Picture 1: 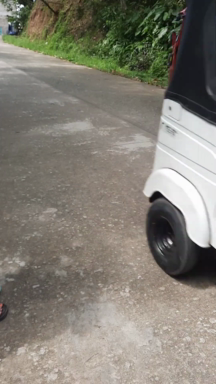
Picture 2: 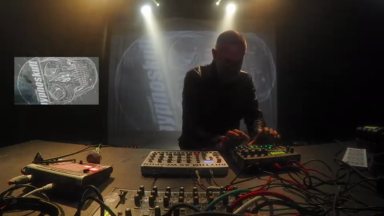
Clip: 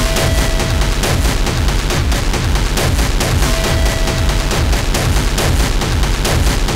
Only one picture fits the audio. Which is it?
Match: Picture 2